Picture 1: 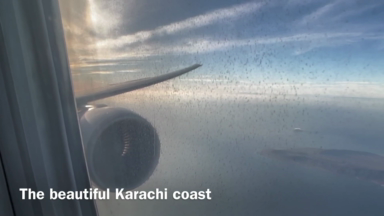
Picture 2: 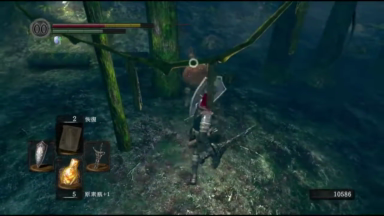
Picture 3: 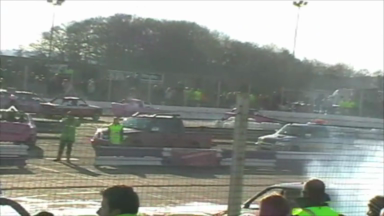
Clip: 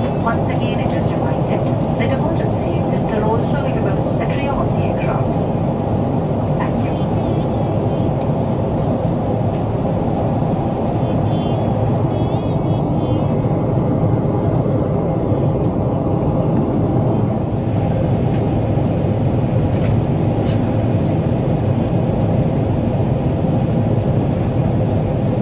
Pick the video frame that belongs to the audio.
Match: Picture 1